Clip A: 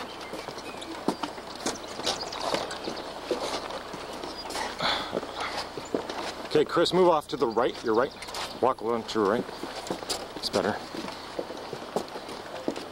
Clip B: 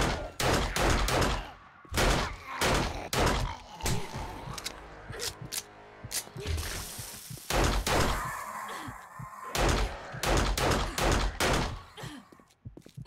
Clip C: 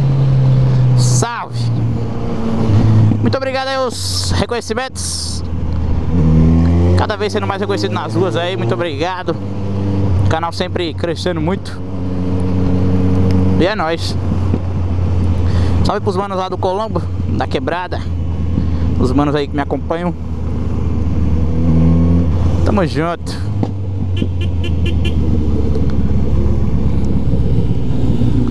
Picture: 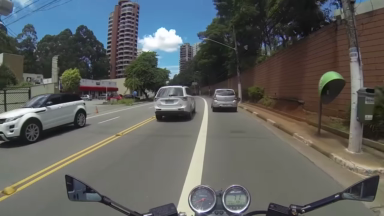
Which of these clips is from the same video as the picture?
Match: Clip C